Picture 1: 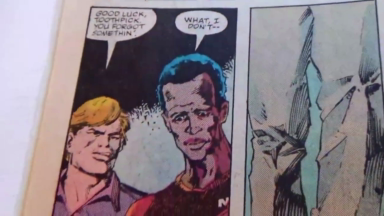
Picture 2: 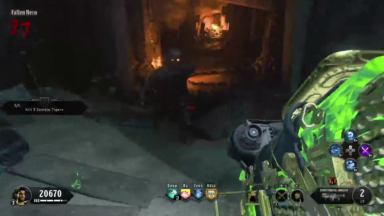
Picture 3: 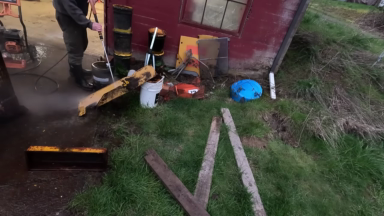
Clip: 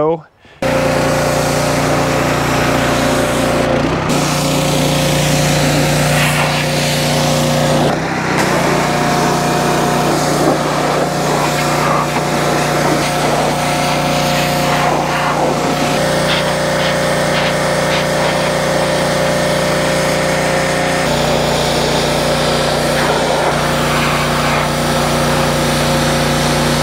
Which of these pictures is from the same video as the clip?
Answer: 3